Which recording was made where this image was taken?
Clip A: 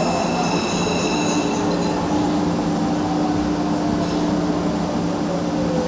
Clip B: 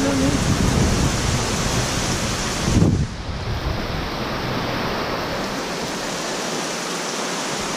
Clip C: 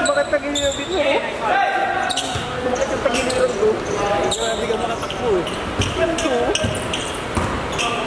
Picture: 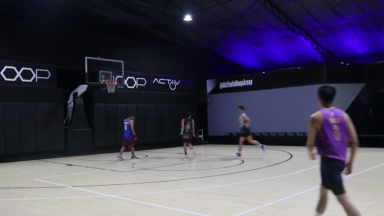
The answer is C